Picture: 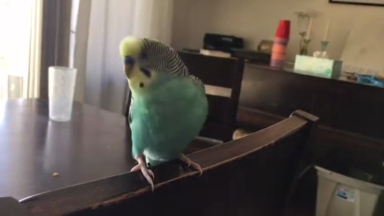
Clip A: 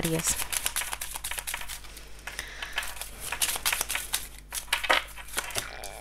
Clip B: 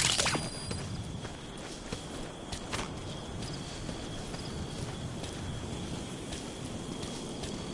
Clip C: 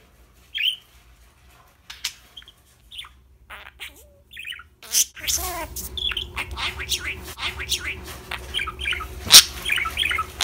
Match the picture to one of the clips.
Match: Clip C